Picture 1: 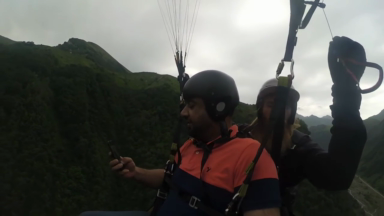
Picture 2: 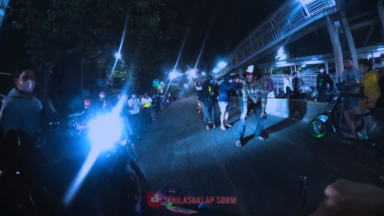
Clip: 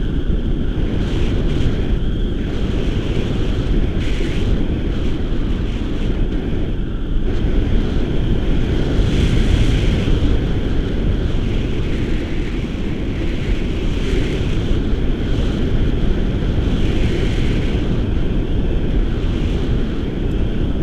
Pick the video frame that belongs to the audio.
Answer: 1